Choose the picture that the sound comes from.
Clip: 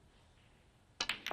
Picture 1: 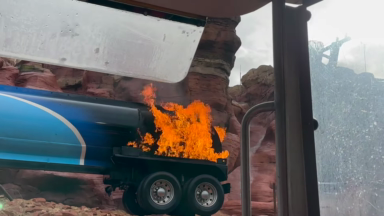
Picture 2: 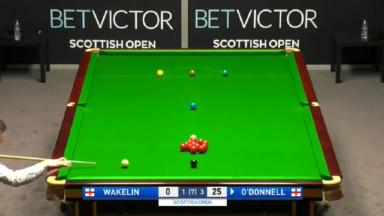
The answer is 2